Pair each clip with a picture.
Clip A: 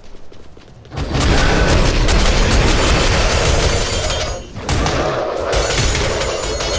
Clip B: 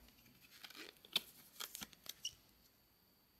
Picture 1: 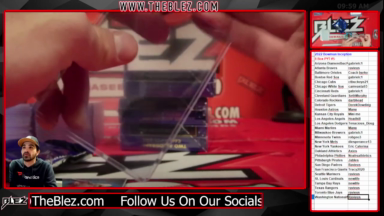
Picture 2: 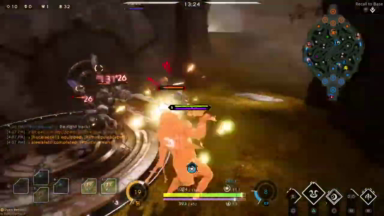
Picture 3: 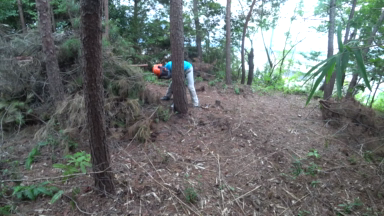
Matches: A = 2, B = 1